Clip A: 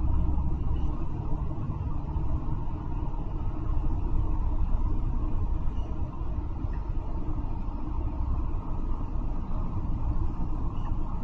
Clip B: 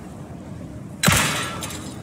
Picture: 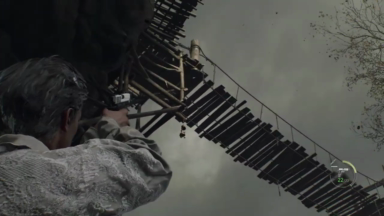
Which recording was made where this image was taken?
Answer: B